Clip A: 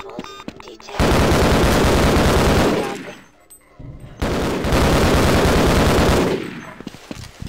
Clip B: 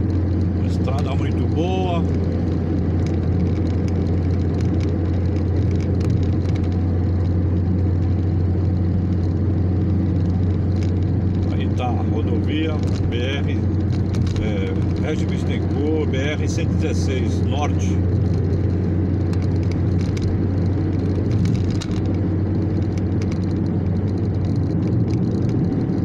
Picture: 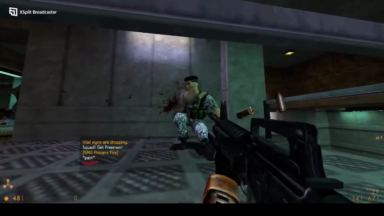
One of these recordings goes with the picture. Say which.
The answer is A